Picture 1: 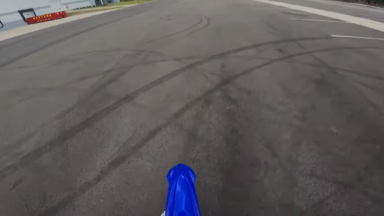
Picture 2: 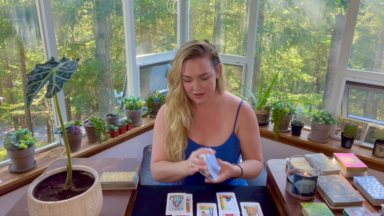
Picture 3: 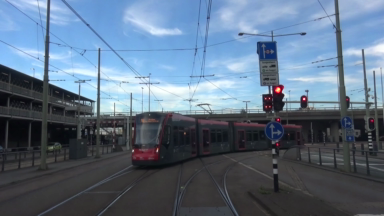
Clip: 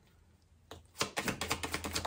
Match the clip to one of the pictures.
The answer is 2